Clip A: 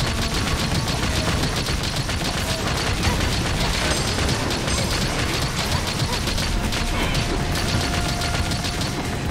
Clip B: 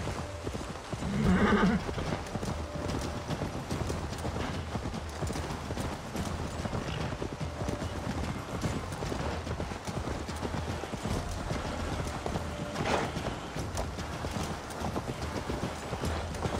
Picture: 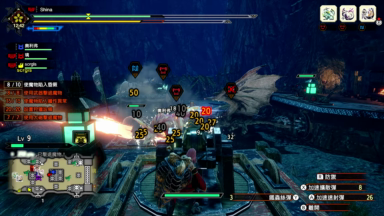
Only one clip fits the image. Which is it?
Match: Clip A